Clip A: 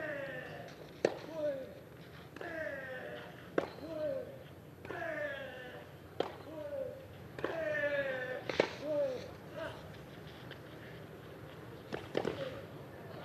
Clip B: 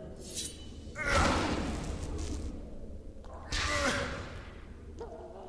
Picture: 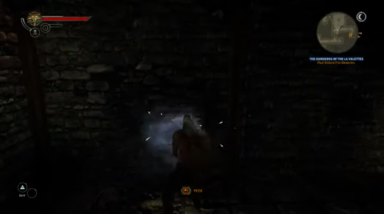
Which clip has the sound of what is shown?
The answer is B